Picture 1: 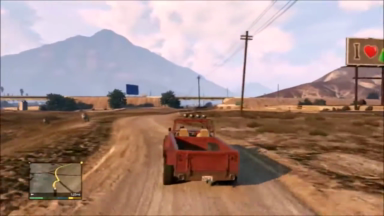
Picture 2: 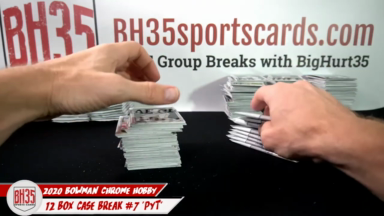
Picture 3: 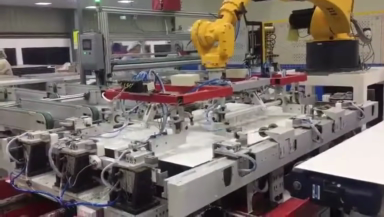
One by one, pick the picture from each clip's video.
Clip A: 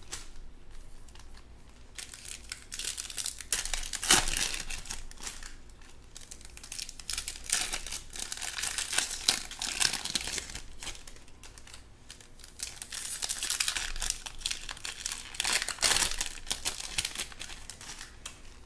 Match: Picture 2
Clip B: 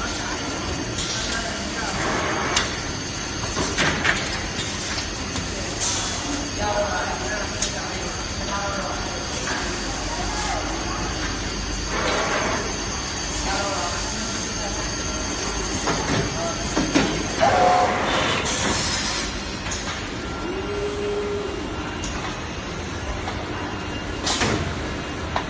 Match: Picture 3